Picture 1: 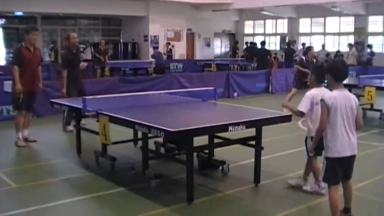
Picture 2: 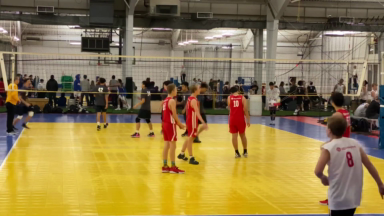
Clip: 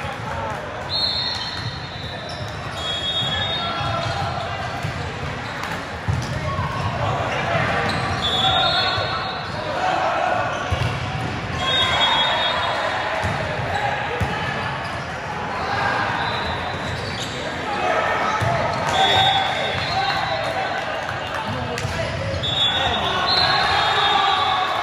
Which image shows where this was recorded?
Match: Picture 2